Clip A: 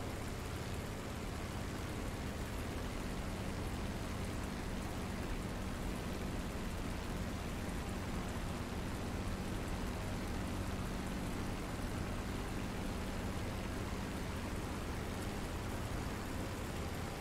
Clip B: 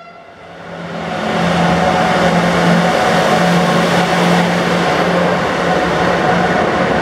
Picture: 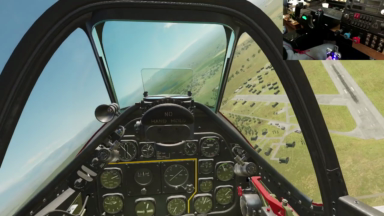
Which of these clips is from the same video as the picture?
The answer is A